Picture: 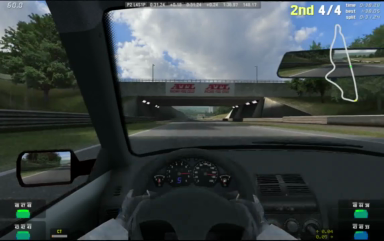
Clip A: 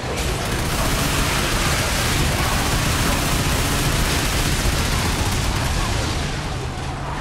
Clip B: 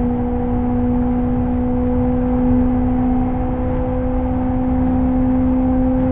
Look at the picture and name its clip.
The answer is B